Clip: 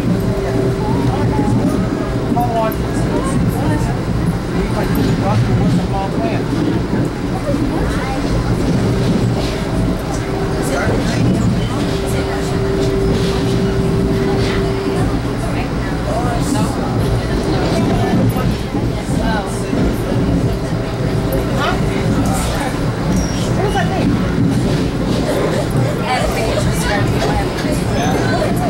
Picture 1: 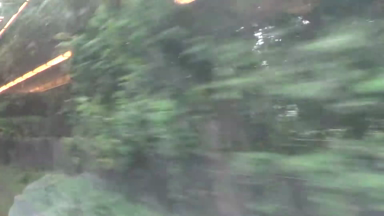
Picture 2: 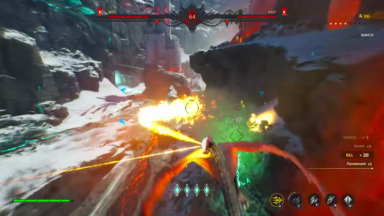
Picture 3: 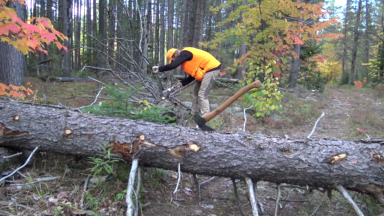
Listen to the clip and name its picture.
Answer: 1